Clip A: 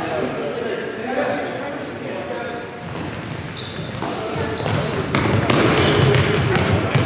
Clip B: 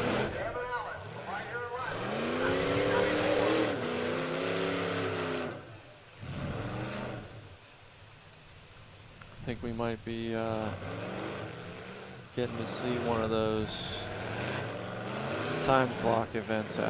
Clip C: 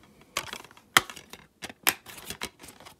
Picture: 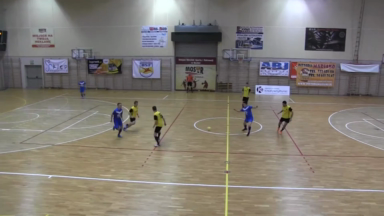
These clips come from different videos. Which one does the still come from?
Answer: A